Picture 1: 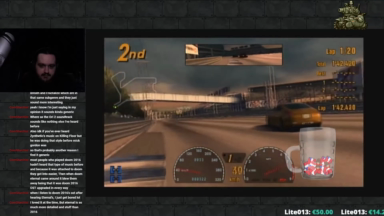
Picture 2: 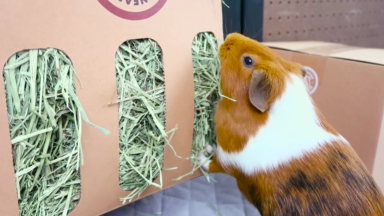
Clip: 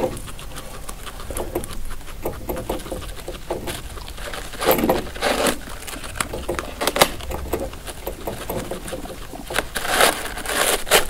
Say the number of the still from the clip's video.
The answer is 2